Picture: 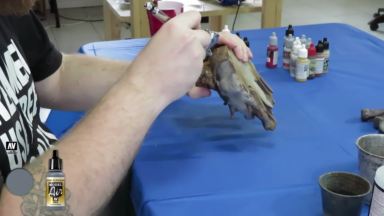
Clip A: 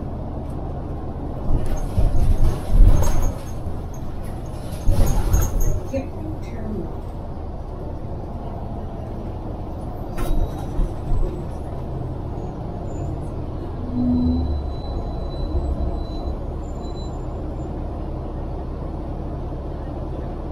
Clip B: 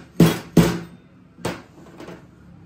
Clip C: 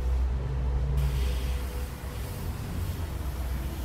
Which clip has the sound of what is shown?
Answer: C